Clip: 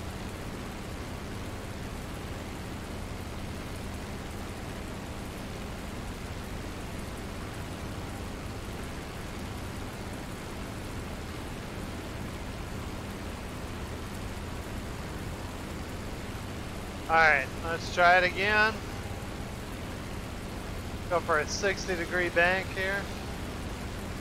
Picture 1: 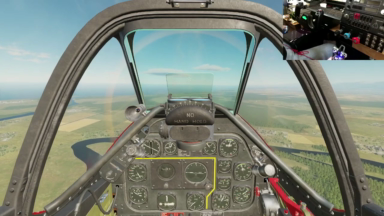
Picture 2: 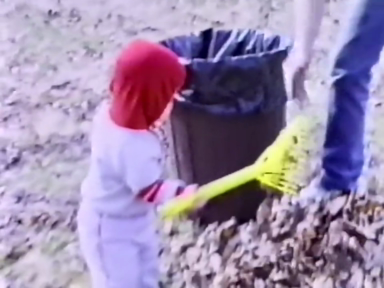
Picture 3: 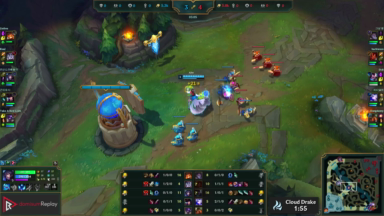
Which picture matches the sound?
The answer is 1